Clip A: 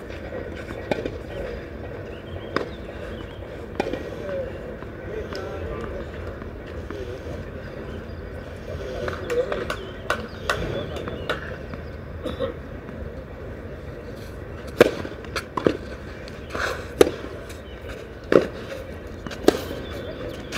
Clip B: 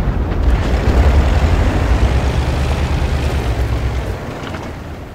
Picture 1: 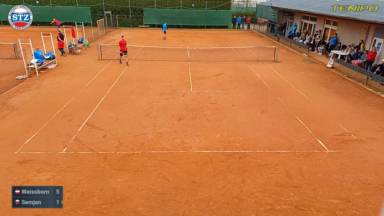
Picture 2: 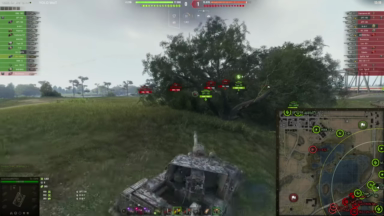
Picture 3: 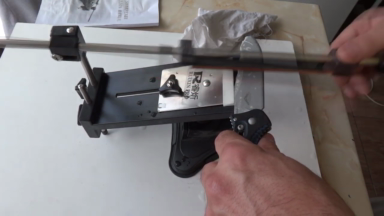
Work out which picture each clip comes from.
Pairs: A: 1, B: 2